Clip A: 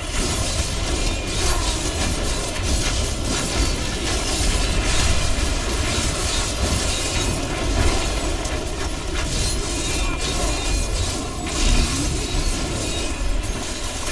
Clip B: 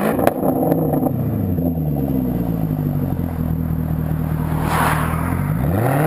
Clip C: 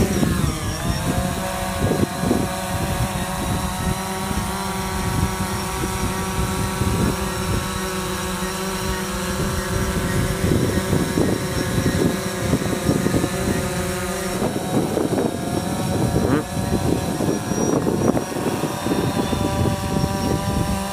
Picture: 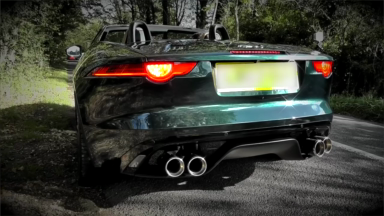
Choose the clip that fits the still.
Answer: B